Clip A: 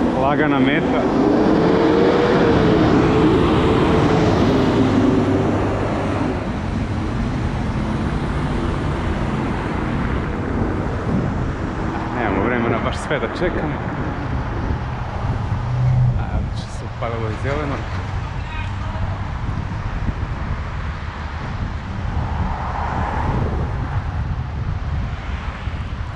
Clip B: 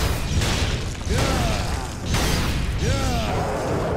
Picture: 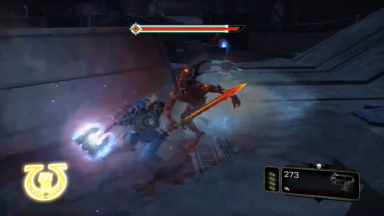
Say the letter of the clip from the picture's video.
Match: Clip B